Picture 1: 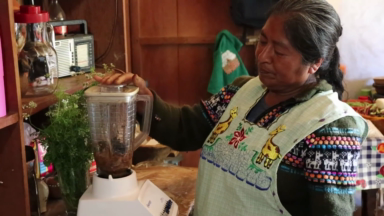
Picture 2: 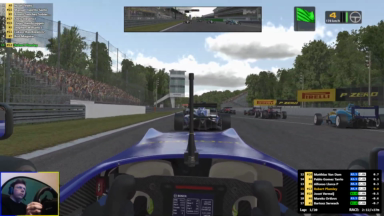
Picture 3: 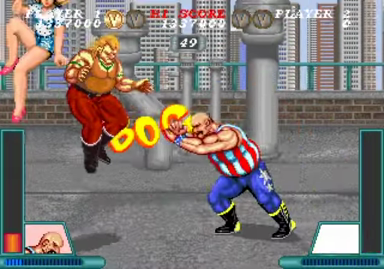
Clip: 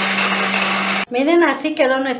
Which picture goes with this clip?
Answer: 1